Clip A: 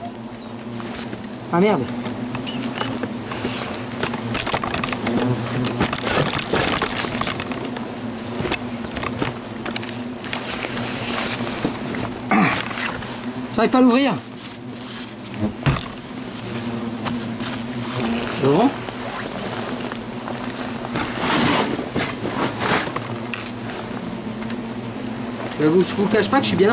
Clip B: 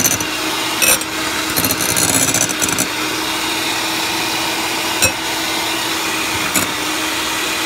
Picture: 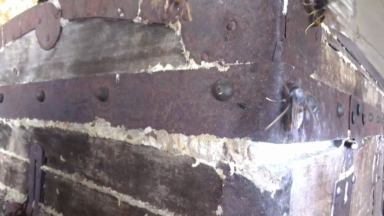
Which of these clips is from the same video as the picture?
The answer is A